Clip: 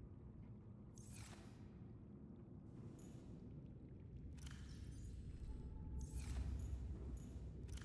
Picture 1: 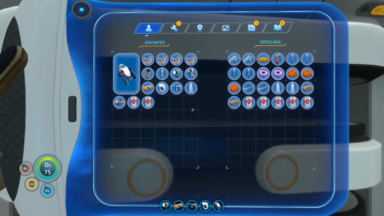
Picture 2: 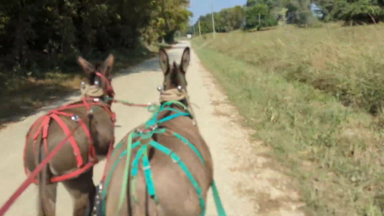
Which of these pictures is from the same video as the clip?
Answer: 1